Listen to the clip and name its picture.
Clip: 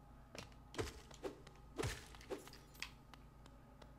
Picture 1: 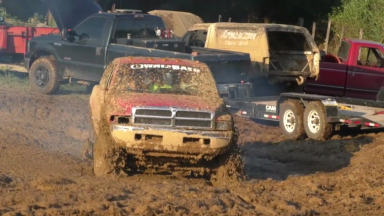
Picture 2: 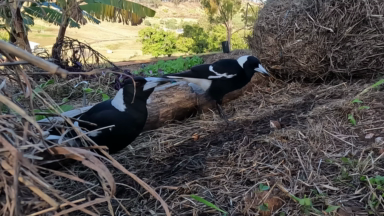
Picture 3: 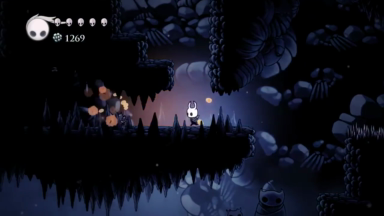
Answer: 3